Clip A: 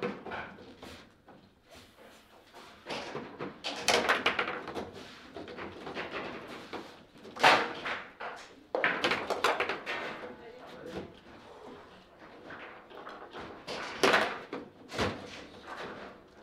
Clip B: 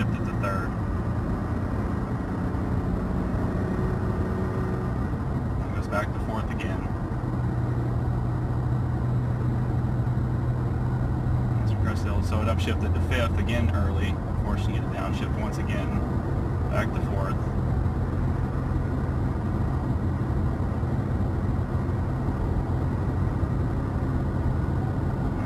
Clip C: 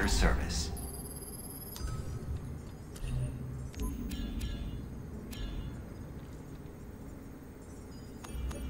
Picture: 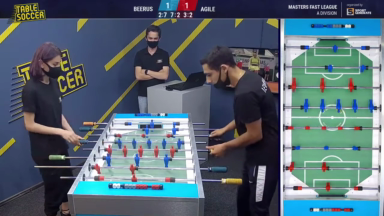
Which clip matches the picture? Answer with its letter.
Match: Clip A